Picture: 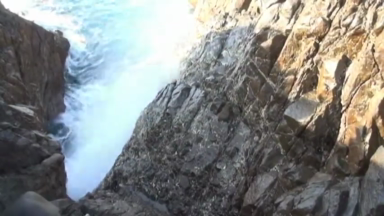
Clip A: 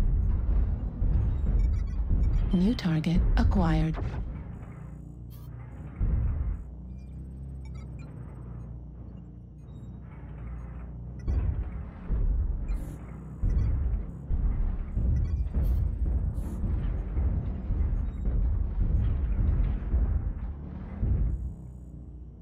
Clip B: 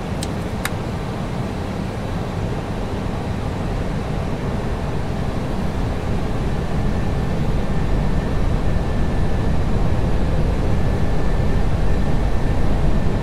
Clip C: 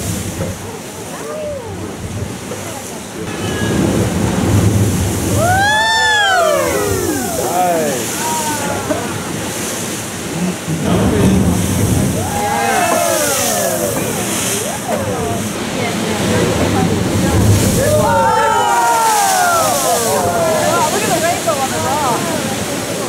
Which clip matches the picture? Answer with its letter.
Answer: C